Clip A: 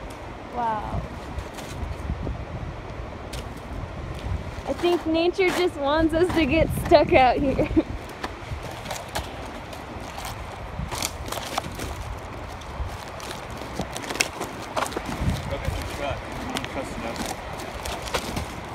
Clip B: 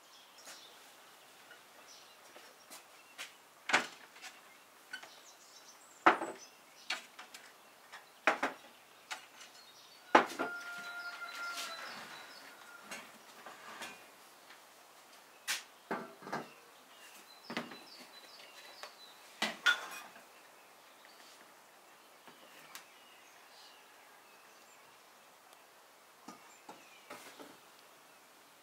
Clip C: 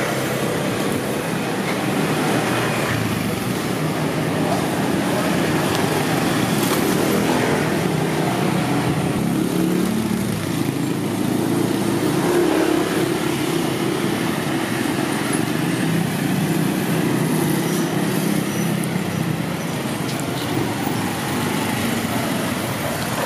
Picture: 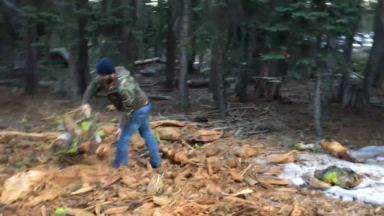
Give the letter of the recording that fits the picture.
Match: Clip A